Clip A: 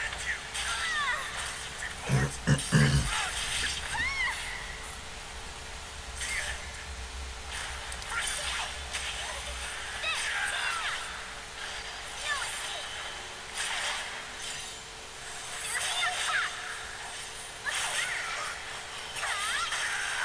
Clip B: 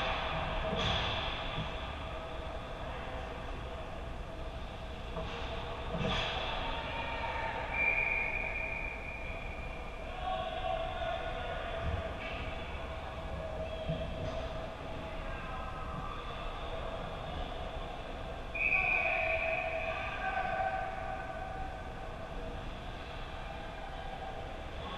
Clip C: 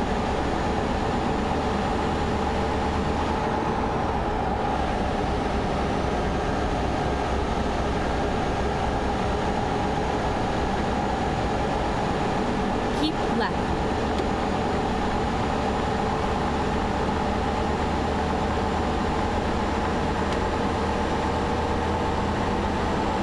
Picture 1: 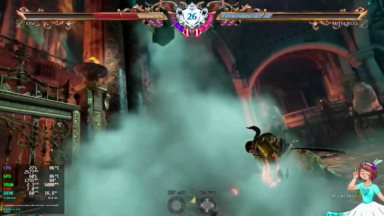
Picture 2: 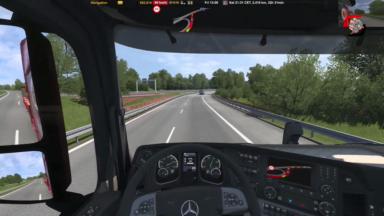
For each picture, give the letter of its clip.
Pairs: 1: A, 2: C